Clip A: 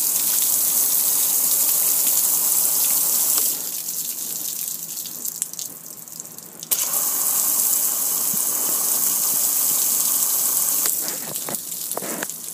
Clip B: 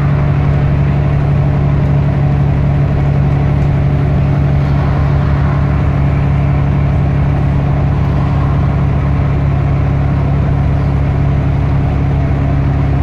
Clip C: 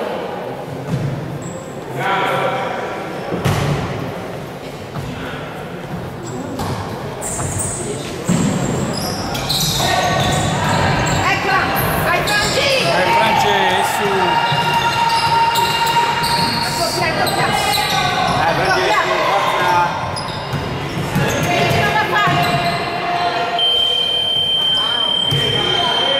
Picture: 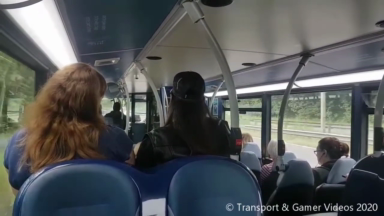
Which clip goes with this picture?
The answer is B